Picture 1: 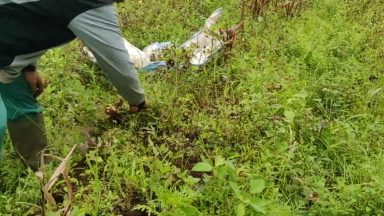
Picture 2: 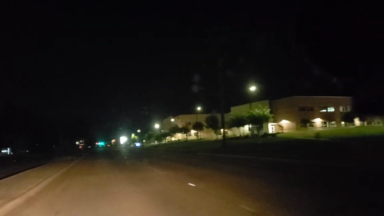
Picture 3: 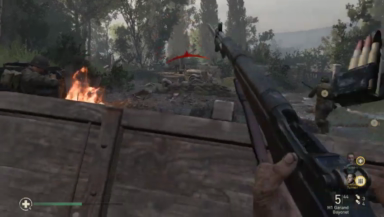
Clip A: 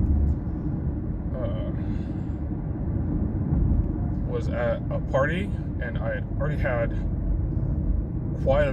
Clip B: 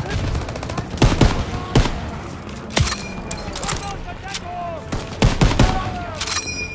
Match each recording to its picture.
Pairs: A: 2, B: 3